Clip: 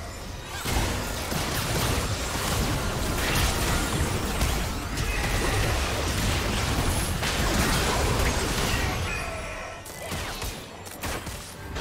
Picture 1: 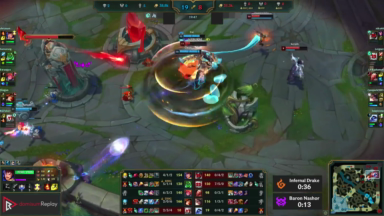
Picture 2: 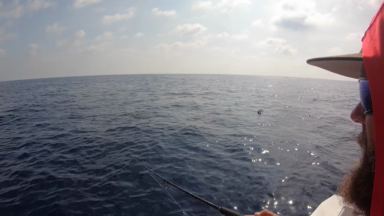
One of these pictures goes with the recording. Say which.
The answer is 1